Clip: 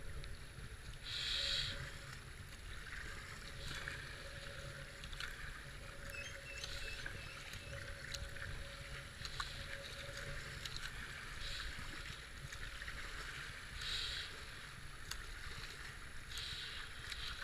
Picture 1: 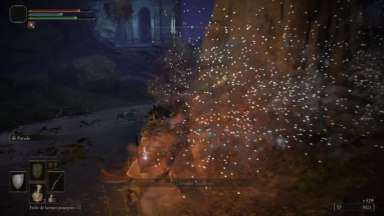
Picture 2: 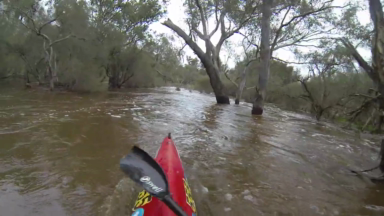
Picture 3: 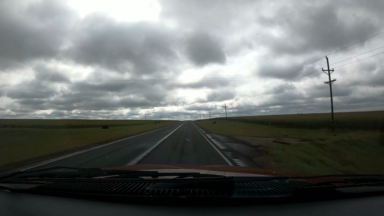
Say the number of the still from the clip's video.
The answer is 2